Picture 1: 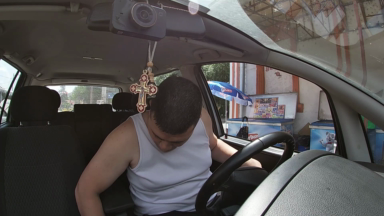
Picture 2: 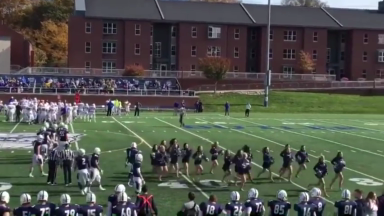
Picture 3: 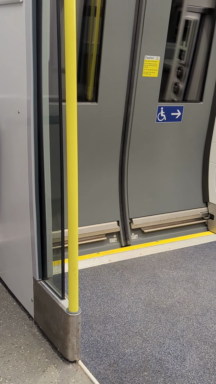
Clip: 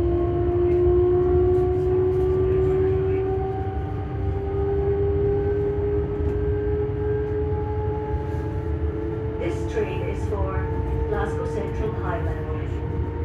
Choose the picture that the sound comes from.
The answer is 3